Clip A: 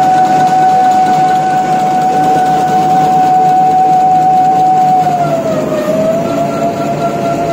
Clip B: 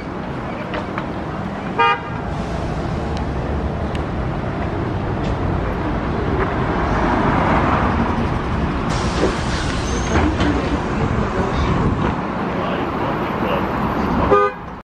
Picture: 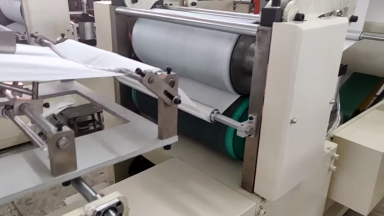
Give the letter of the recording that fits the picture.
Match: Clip A